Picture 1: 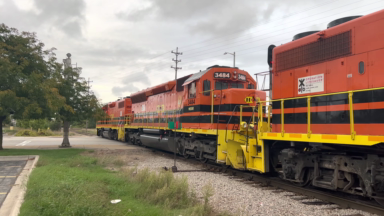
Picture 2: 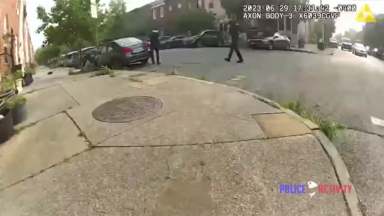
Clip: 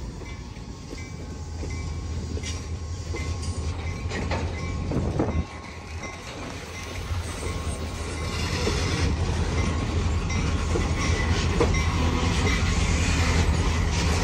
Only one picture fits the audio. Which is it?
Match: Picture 1